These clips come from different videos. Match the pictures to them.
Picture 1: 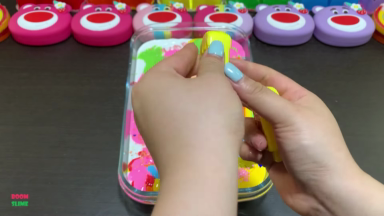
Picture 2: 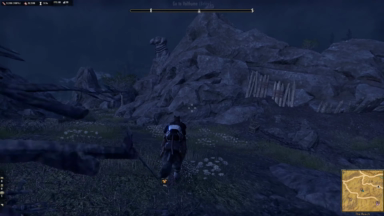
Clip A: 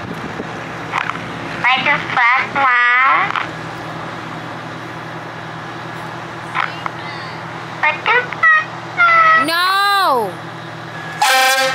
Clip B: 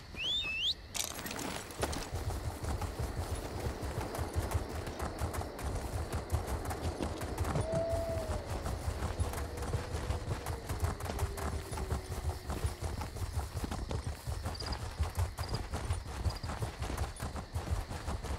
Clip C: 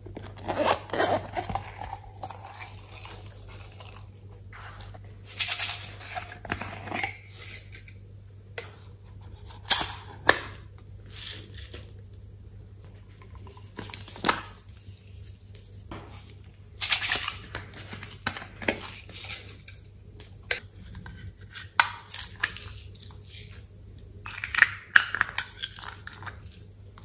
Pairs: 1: C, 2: B